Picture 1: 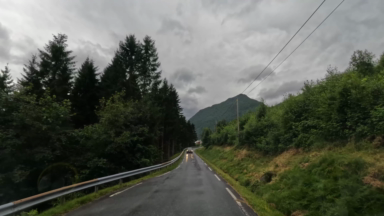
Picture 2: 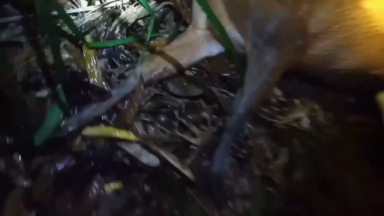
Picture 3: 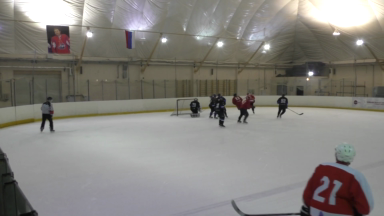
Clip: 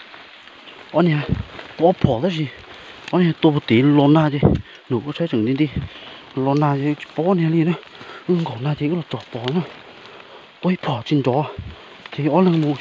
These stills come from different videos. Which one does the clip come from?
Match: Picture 2